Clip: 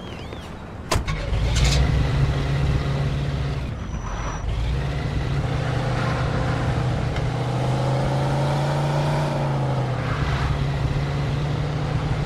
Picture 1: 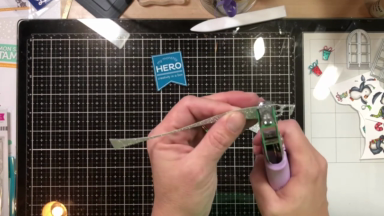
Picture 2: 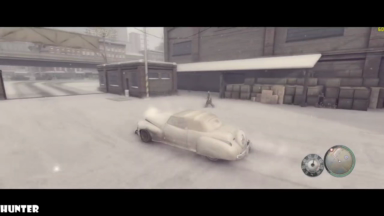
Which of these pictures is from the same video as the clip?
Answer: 2